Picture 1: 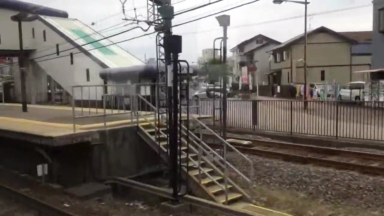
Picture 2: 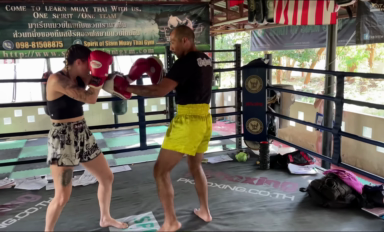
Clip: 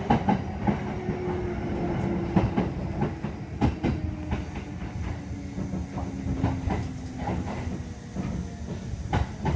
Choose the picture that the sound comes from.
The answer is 1